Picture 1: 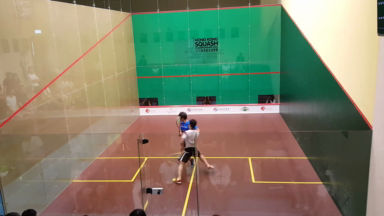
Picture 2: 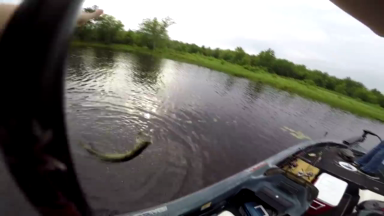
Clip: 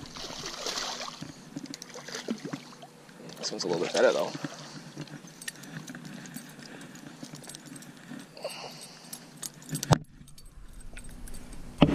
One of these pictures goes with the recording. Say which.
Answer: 2